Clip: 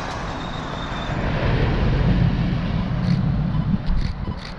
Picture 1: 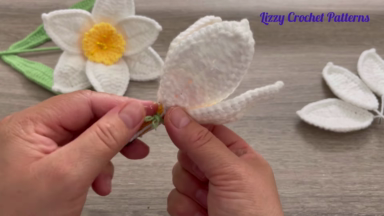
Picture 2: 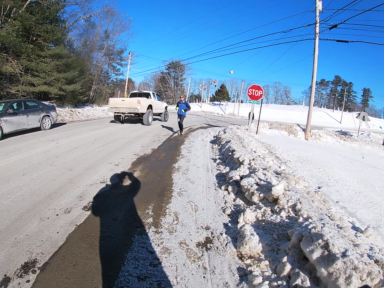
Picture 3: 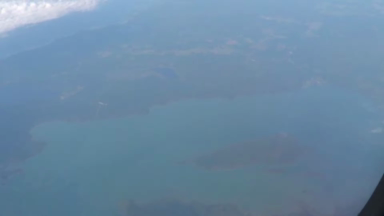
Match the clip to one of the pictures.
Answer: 2